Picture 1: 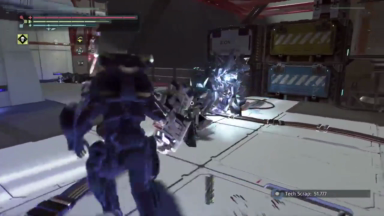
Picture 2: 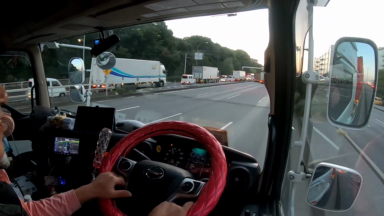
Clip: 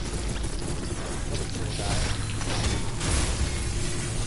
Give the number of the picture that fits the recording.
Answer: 1